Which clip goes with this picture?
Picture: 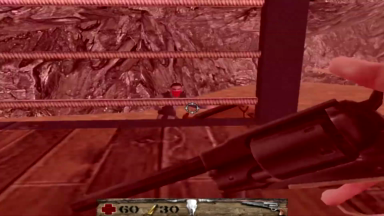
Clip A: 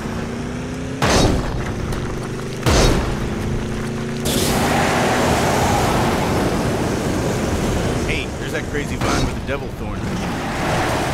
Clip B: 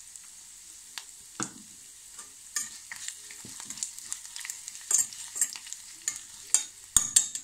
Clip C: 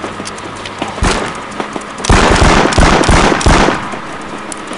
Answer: C